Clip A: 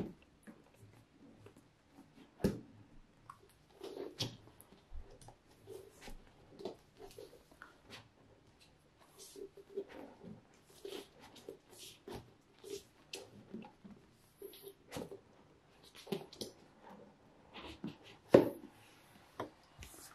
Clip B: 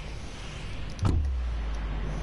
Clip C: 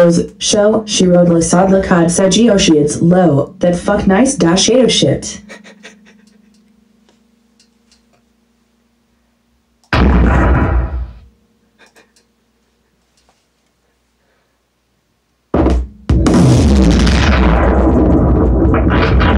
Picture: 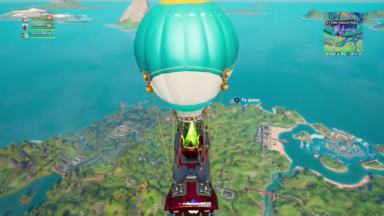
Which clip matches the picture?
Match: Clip B